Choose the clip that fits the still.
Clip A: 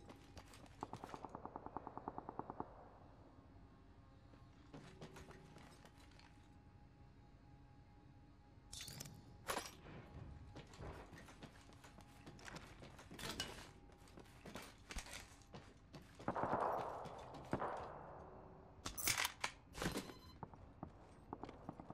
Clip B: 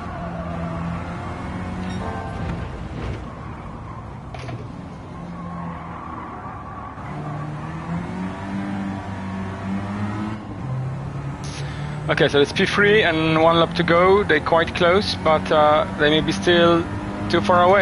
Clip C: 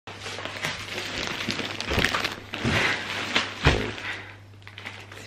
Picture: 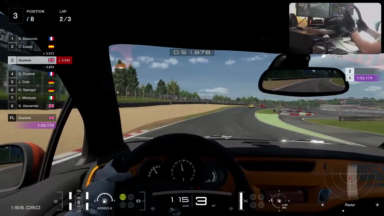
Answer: B